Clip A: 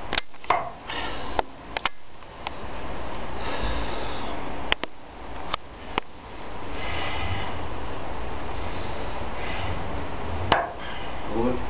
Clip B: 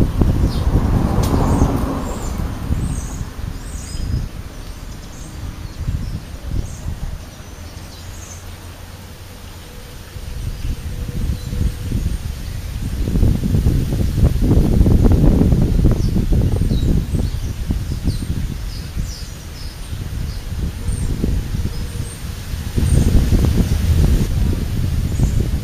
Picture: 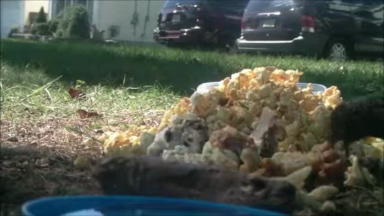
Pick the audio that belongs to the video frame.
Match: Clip B